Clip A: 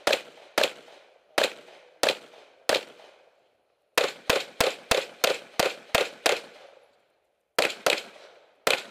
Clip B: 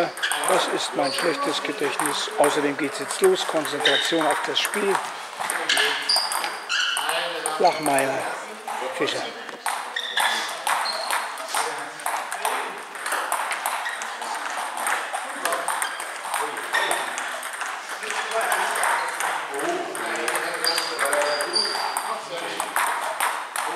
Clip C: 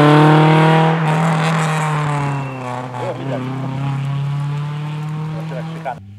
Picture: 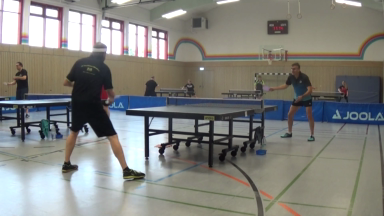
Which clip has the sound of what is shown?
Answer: B